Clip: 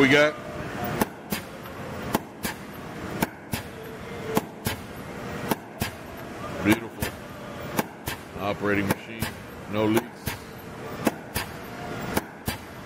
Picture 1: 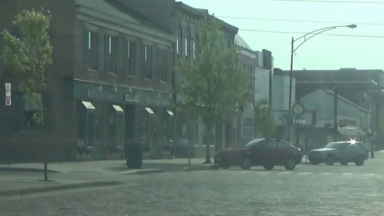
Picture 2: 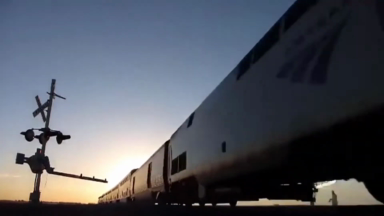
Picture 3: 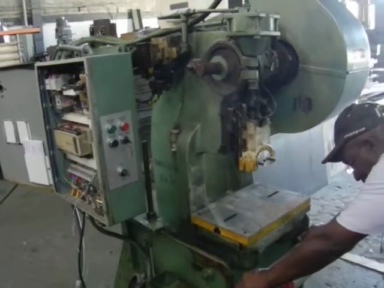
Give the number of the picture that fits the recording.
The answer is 3